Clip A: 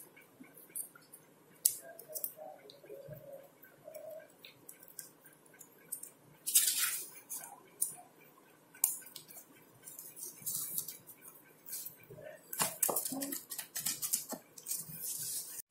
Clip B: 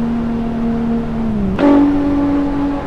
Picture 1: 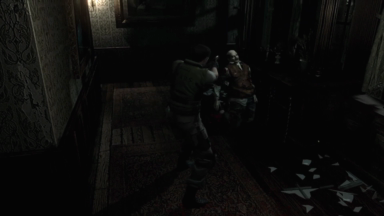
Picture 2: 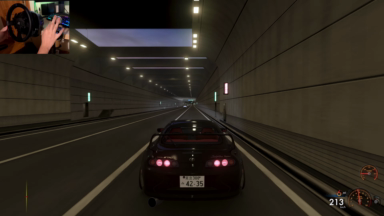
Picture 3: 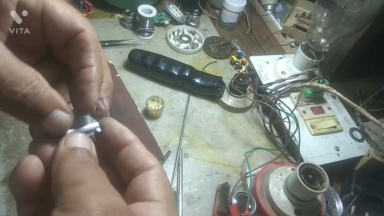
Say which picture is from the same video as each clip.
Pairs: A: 3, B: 2